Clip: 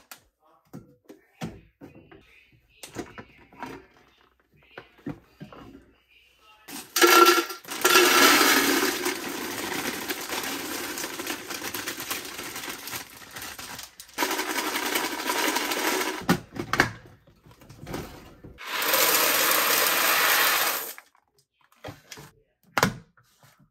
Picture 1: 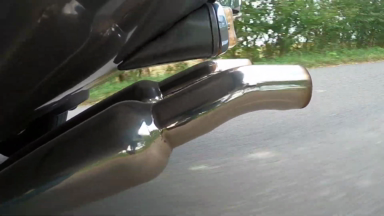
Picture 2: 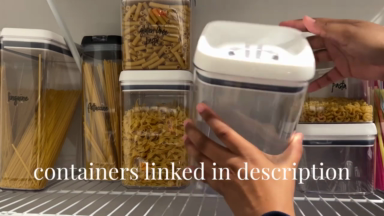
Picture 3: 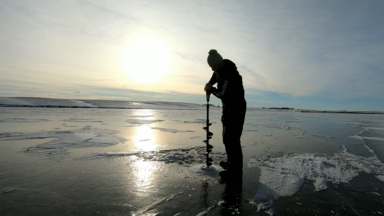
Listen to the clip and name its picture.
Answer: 2